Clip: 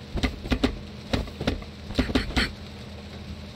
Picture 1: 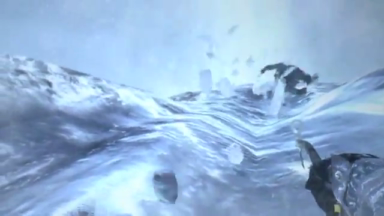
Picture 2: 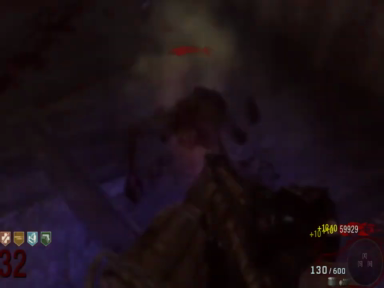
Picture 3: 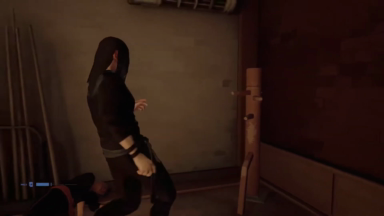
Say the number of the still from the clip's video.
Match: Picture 3